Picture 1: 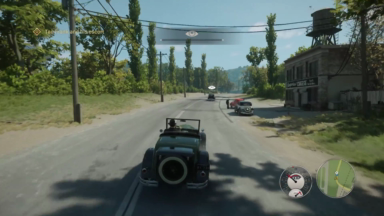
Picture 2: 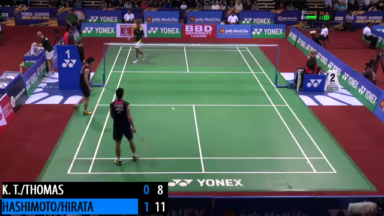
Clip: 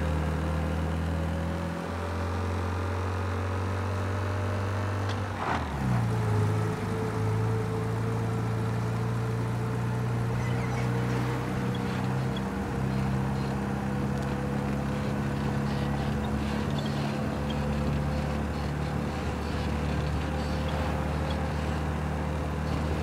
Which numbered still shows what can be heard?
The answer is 1